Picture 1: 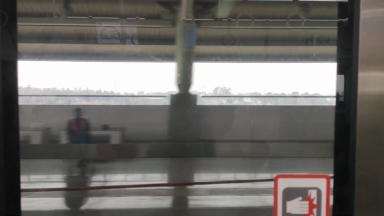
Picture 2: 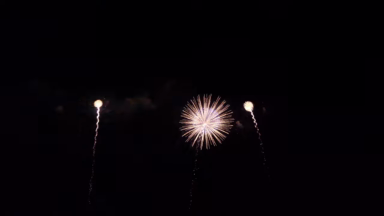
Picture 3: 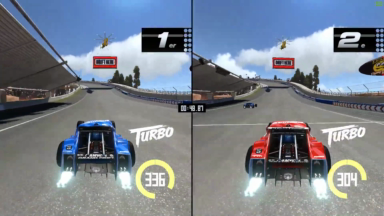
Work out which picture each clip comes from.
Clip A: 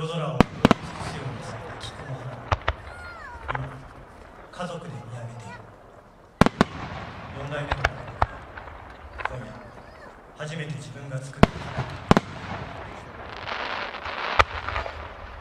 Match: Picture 2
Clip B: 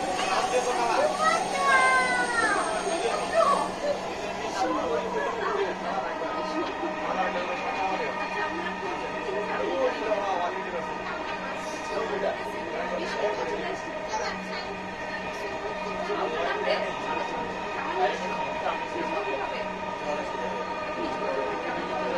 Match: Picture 1